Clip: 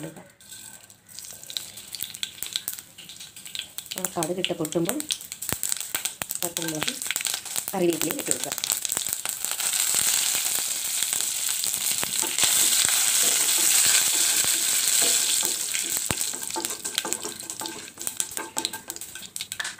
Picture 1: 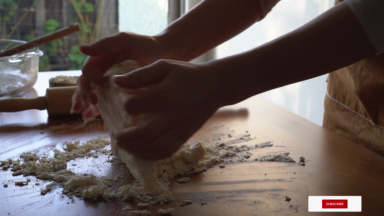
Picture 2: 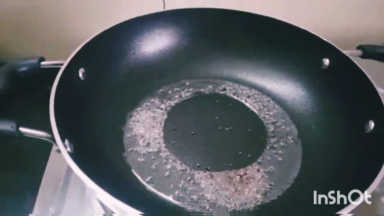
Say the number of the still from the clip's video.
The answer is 2